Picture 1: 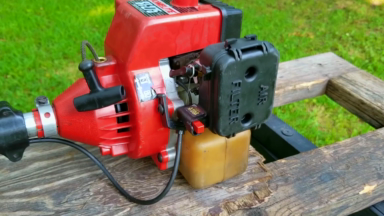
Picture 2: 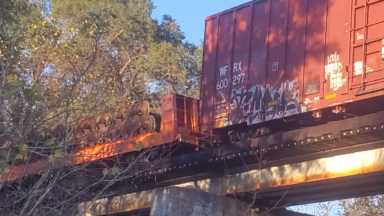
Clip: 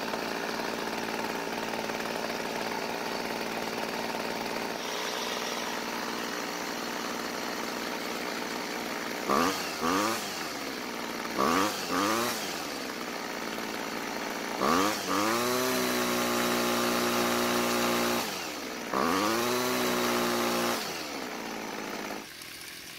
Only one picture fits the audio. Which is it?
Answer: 1